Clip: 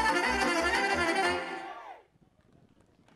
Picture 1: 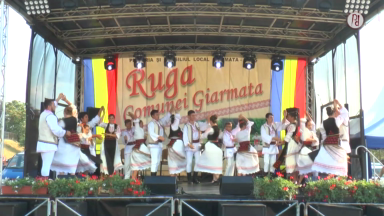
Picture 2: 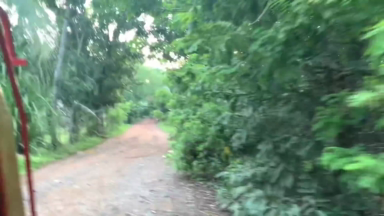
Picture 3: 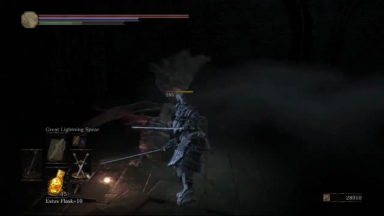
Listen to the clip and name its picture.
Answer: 1